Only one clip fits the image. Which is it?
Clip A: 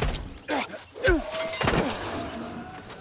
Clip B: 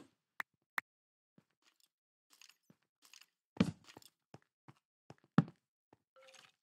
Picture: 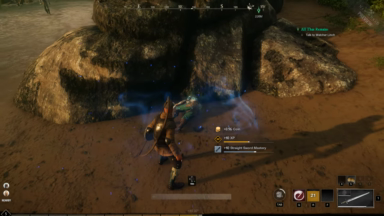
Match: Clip A